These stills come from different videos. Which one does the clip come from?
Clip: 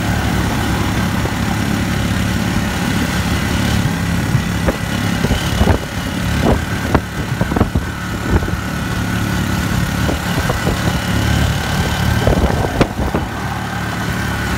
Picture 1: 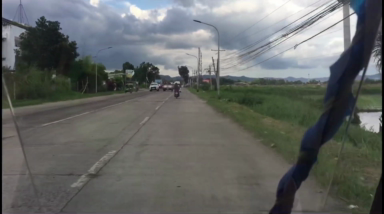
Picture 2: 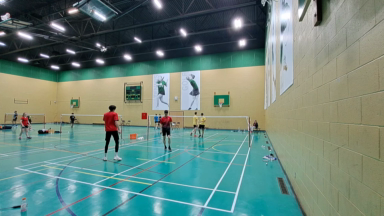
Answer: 1